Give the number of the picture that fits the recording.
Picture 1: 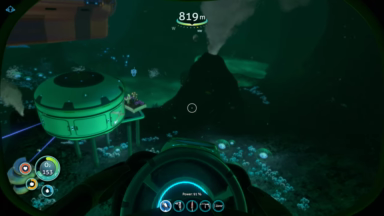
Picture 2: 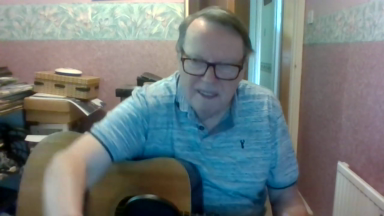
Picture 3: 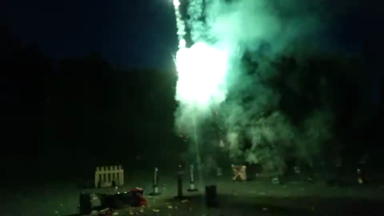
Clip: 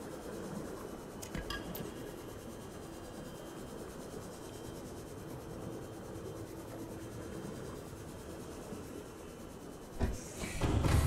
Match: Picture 1